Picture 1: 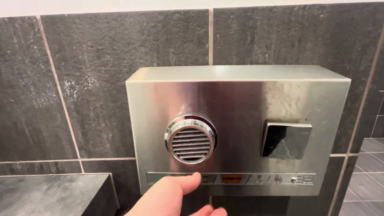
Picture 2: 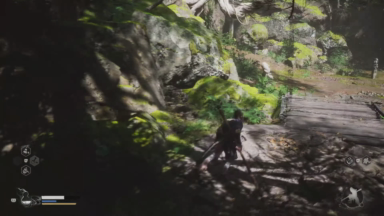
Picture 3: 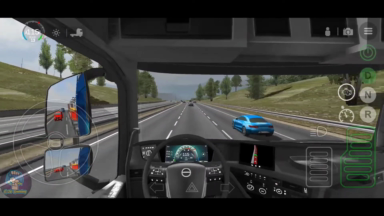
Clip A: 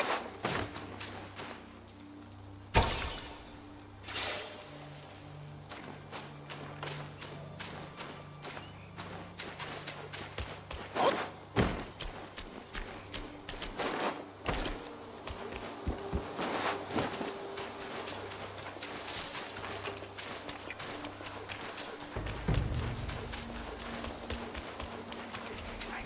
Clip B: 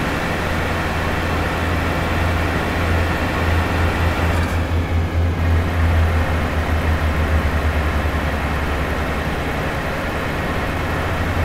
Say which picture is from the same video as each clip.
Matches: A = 2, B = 3